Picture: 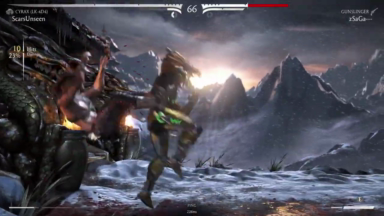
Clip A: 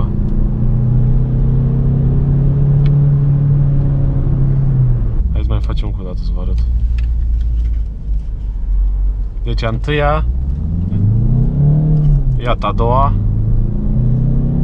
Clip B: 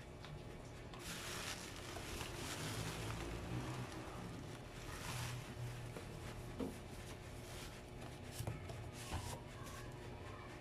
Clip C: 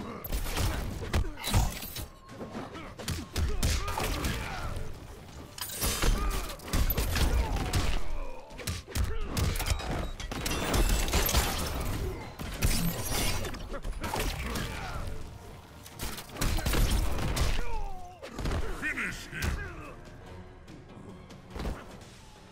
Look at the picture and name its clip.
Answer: C